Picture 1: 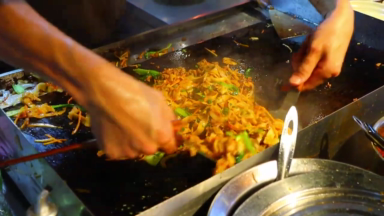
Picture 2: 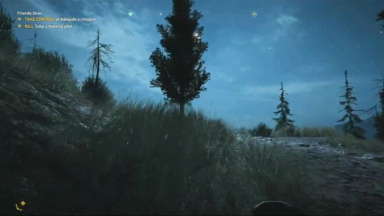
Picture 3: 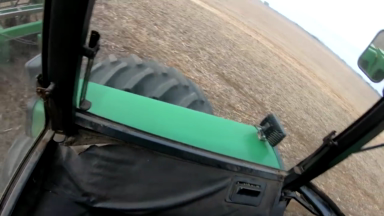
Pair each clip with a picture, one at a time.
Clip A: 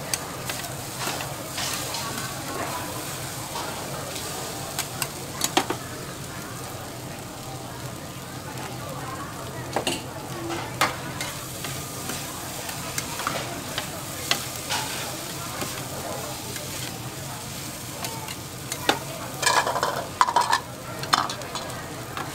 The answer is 1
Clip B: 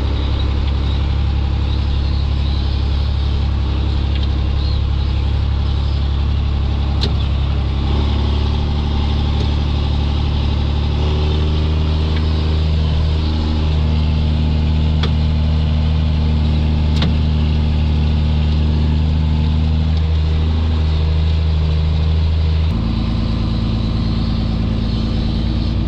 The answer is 3